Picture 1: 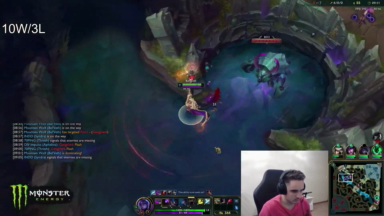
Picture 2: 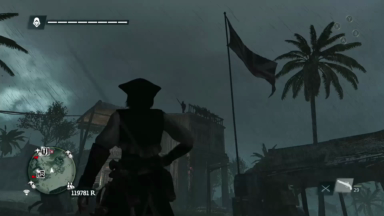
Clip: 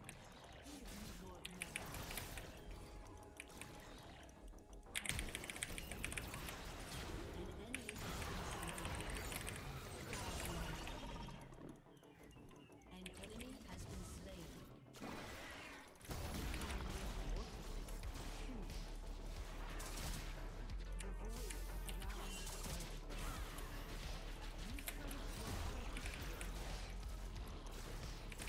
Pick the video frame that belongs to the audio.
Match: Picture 1